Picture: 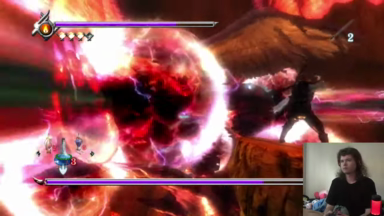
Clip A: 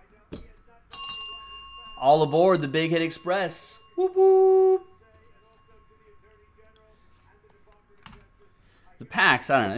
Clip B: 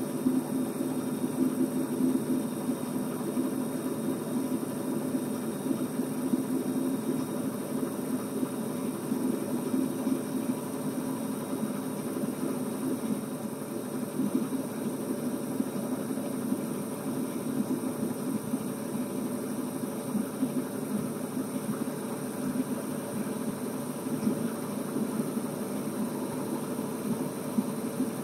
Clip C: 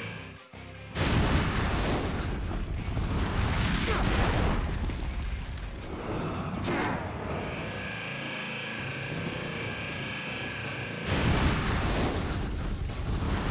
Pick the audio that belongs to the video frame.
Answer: C